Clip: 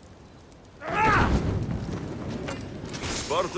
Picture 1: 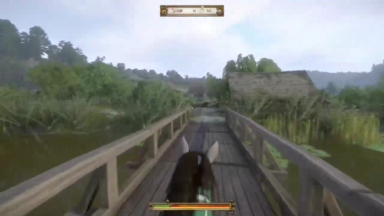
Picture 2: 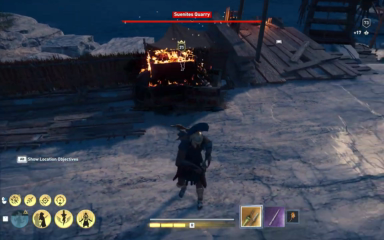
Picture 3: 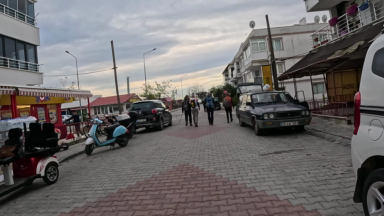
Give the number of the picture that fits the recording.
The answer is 2